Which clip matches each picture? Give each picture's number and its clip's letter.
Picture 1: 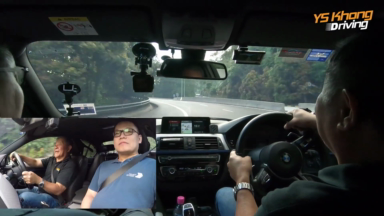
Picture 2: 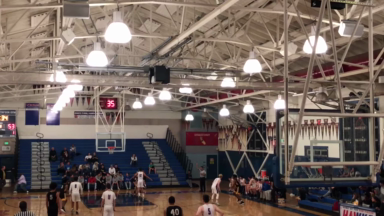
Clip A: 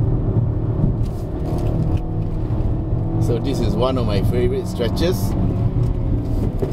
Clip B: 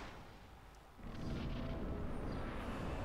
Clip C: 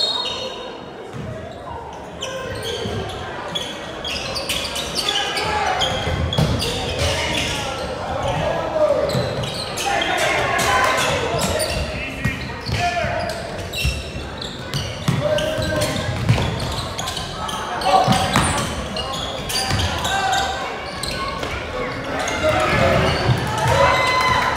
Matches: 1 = A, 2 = C